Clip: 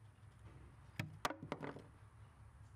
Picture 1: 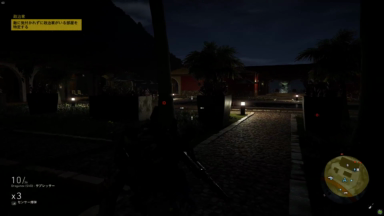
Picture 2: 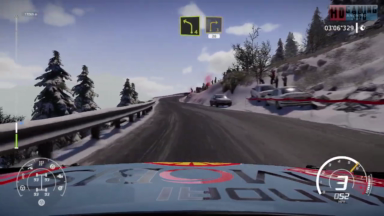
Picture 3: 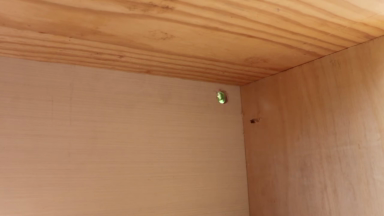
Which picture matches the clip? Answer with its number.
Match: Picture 3